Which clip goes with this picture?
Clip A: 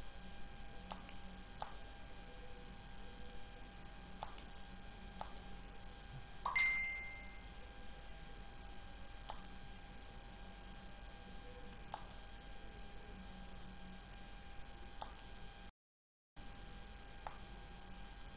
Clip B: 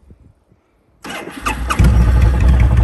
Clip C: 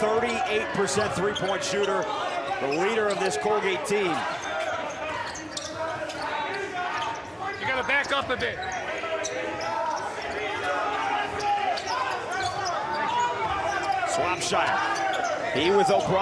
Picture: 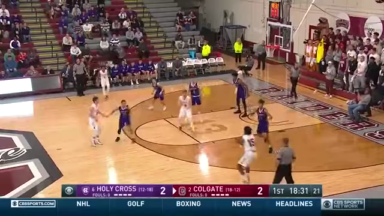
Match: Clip C